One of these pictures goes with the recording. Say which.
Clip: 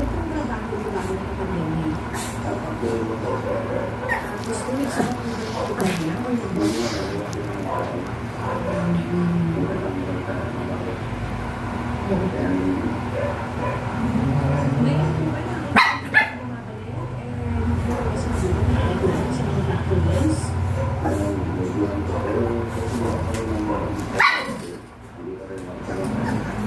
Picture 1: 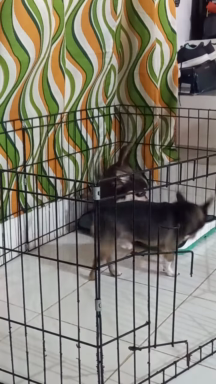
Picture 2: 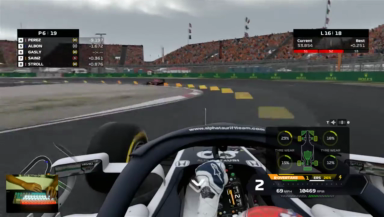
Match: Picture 1